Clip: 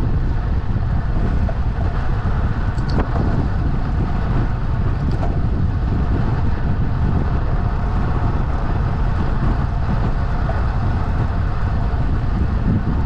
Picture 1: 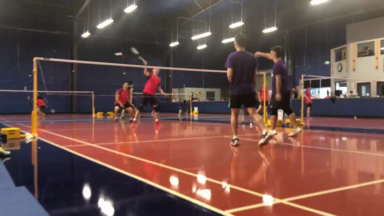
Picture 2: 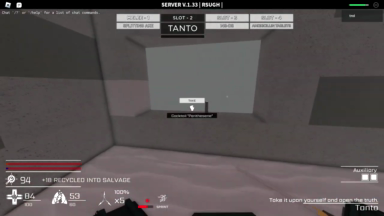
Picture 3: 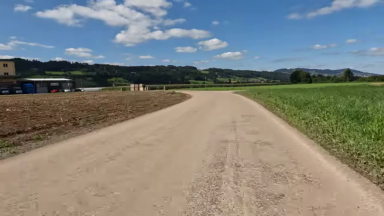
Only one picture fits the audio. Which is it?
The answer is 3